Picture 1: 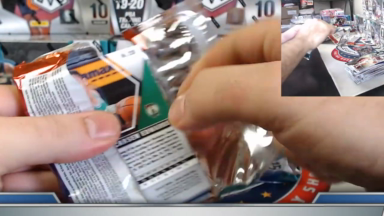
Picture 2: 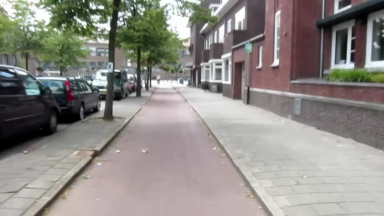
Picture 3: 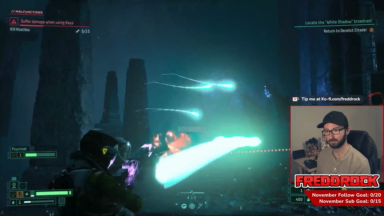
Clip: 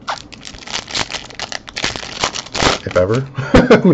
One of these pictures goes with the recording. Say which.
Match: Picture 1